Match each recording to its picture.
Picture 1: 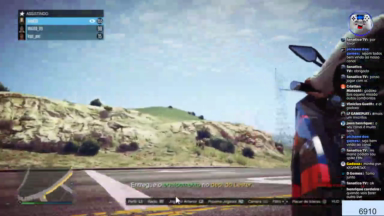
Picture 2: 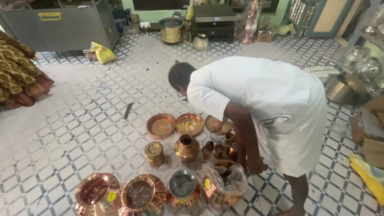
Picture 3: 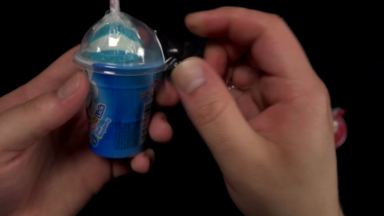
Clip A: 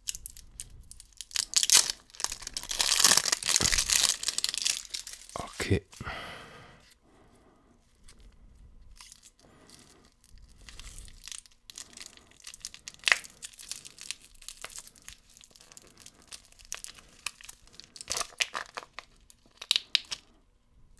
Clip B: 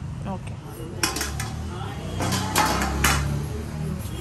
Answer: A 3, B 2